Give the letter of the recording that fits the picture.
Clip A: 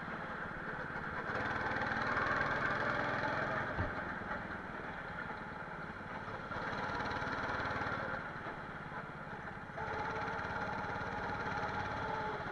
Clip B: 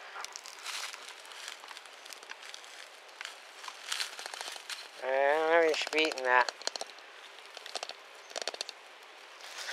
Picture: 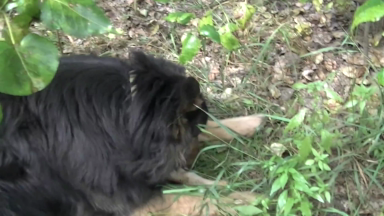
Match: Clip B